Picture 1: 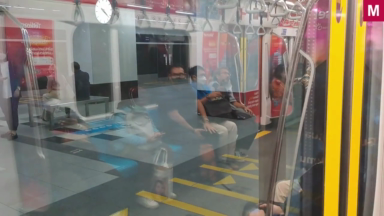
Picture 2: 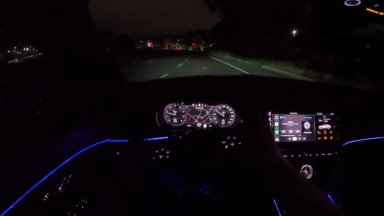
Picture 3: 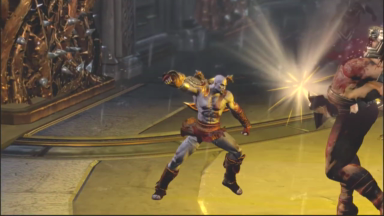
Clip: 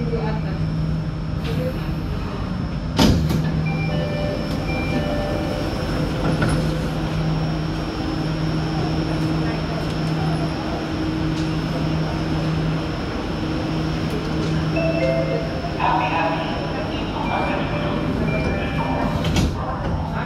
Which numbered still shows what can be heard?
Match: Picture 1